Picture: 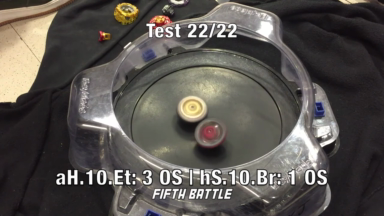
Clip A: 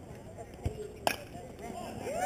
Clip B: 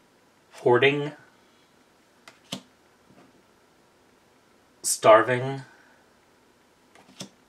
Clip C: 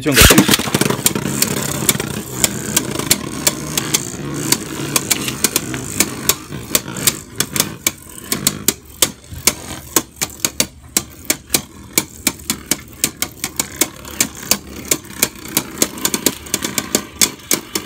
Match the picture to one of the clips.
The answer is C